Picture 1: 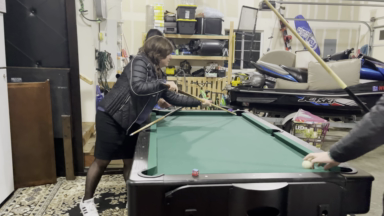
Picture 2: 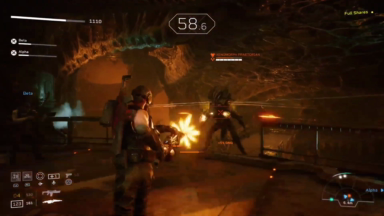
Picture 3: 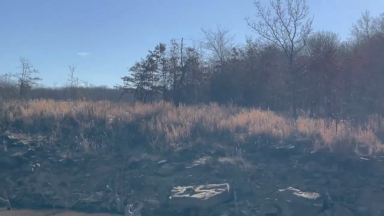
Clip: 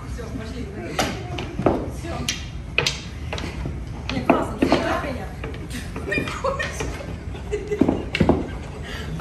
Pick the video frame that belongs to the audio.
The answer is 1